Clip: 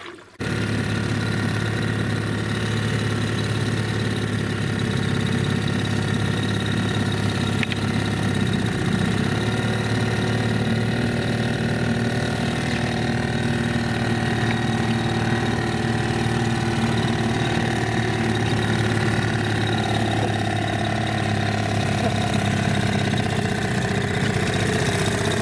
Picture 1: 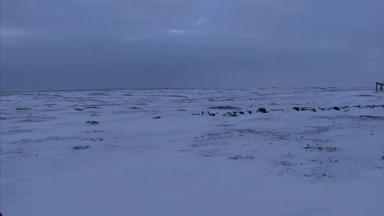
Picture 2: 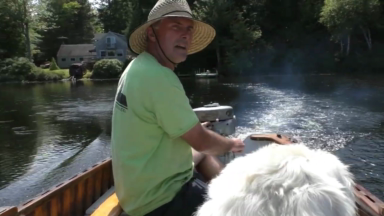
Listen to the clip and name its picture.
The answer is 2